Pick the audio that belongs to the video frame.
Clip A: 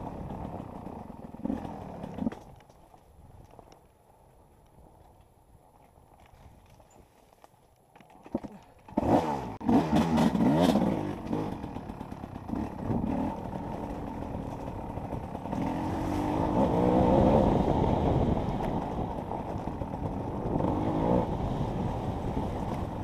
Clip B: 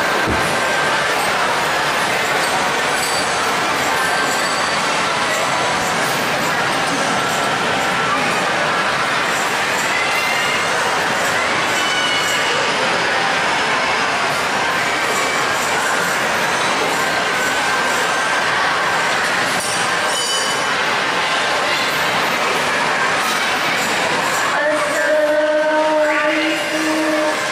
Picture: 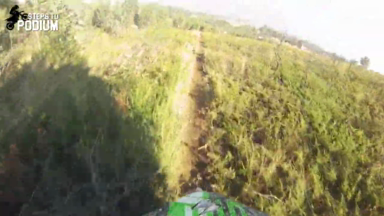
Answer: A